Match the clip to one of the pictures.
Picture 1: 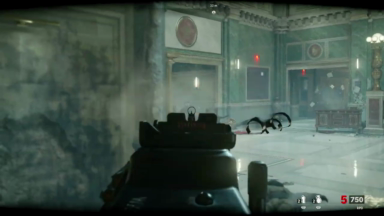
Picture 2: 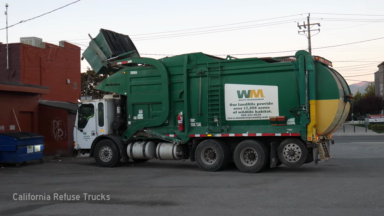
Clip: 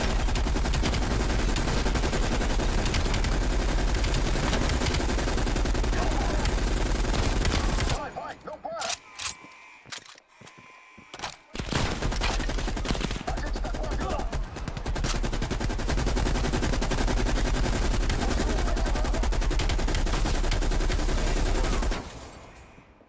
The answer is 1